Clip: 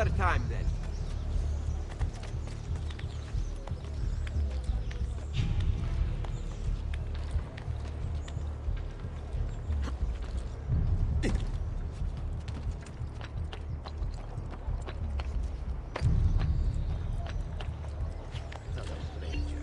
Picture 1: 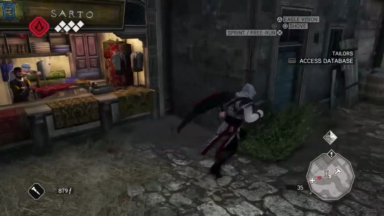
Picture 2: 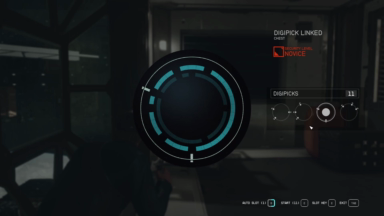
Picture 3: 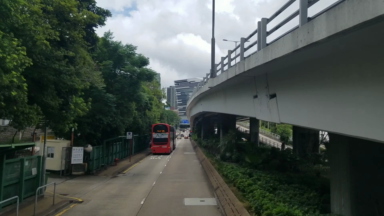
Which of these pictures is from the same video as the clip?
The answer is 1